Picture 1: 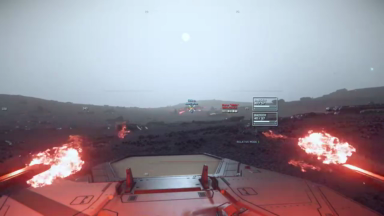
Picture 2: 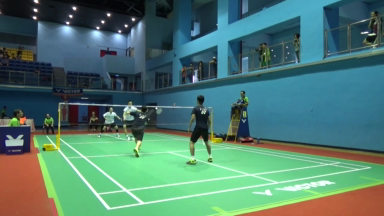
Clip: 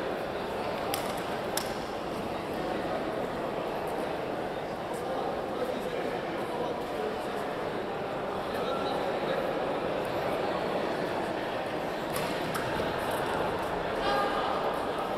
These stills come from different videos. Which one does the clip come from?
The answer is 2